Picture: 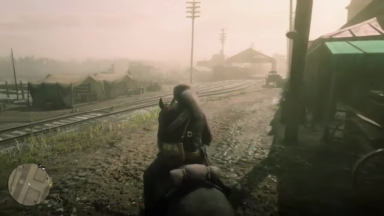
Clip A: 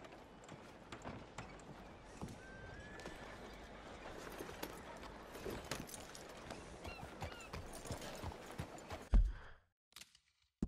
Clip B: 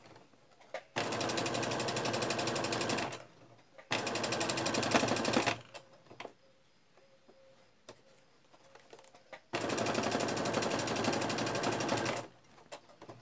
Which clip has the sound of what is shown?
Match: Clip A